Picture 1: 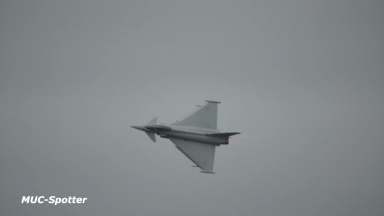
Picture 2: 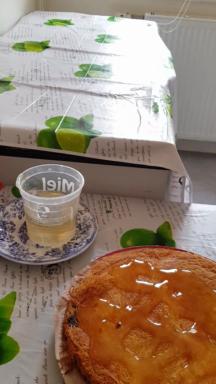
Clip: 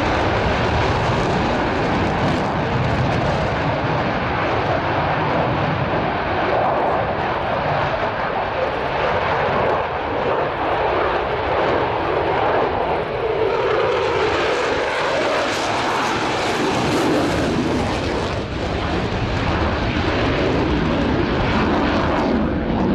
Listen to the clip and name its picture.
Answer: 1